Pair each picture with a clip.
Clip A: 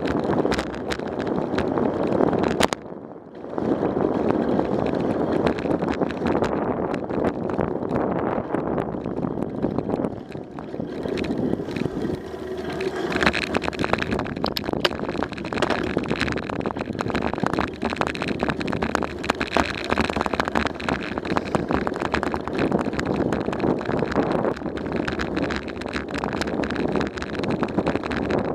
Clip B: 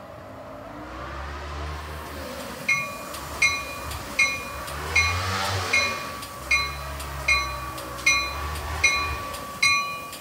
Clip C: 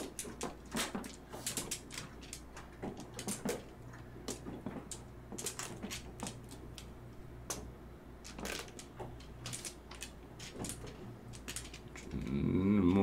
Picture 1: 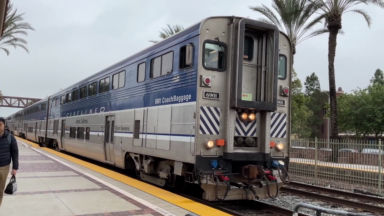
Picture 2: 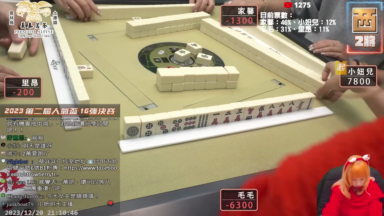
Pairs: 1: B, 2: C